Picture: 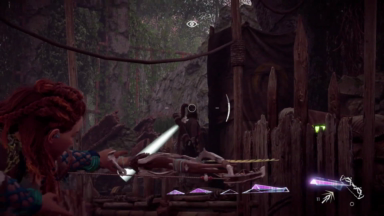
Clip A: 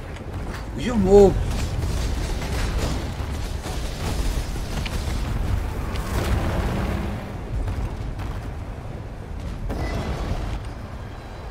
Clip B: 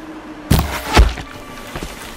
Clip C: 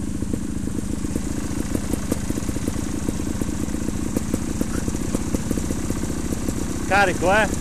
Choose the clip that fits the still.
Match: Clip B